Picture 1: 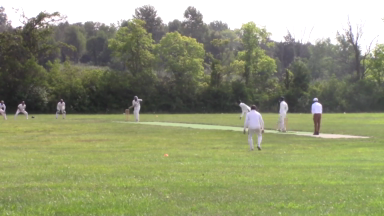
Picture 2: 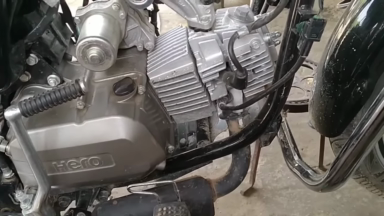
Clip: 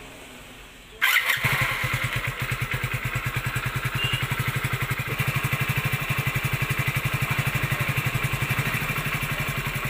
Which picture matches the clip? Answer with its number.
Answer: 2